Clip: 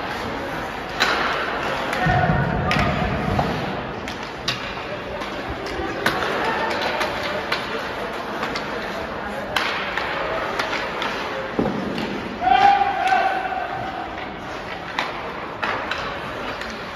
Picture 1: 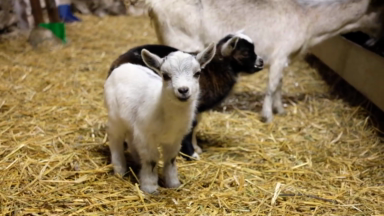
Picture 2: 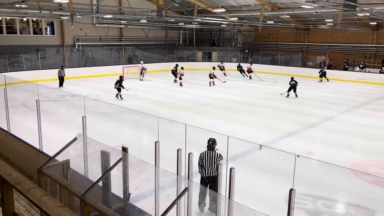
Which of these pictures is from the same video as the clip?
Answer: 2